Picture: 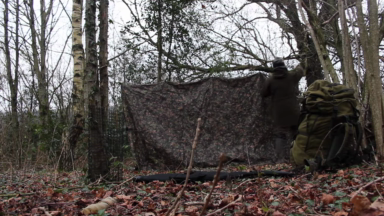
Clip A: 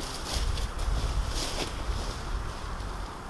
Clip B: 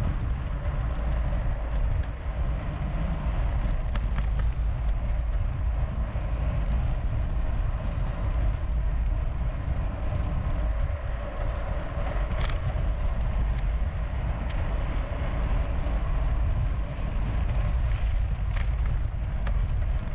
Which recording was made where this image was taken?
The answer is A